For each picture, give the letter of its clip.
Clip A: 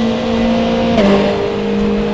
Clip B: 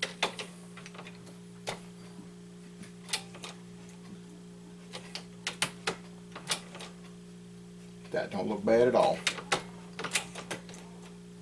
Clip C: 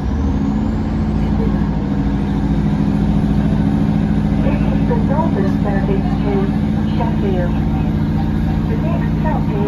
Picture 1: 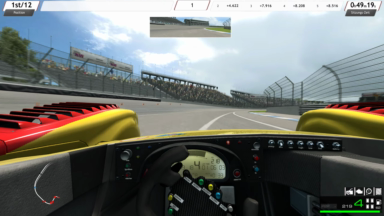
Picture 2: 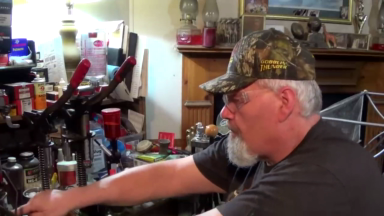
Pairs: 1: A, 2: B